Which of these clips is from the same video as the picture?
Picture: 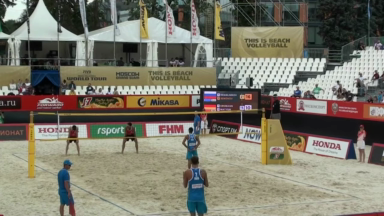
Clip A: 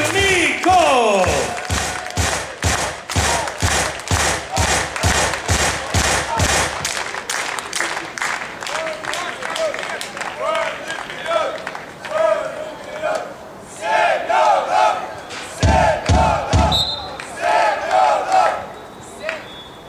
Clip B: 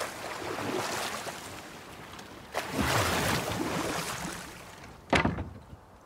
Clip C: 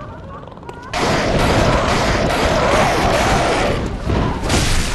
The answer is A